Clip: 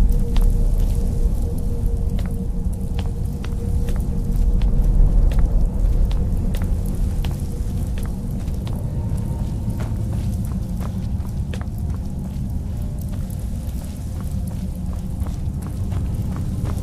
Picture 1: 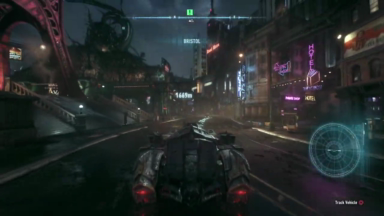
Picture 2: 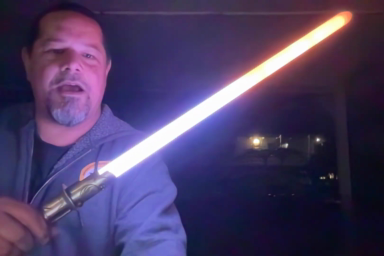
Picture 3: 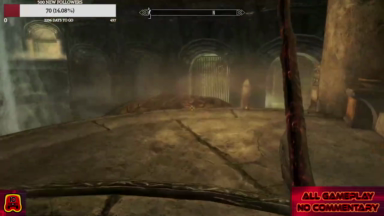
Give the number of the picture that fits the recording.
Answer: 3